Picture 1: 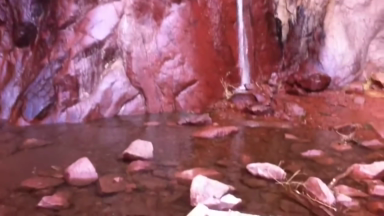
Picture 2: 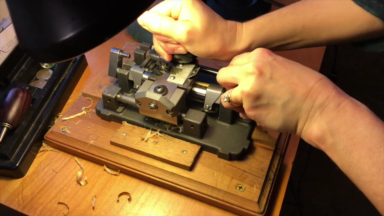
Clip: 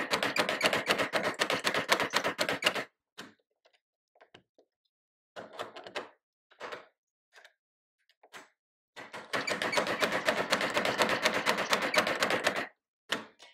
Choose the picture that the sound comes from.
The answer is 2